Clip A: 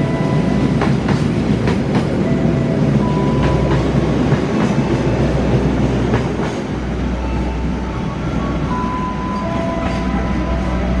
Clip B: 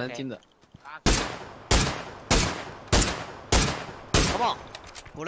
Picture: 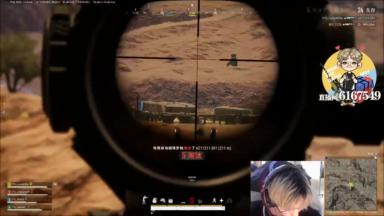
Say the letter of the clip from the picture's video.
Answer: B